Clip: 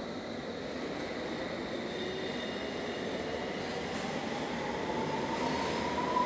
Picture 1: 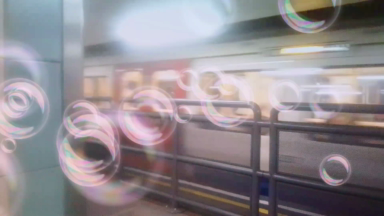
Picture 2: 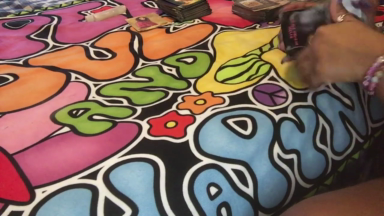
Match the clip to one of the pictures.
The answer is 1